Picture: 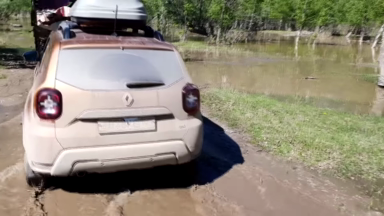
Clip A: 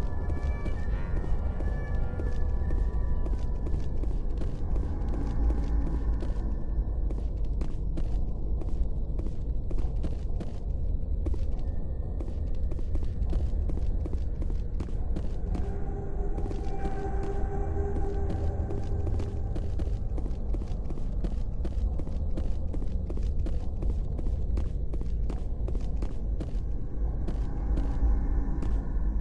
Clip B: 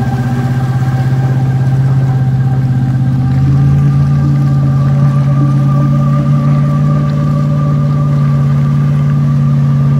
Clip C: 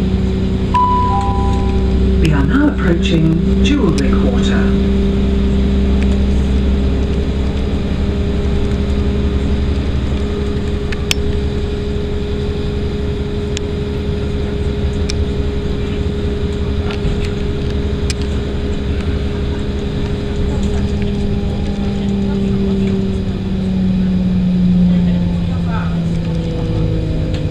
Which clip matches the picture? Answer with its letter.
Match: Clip B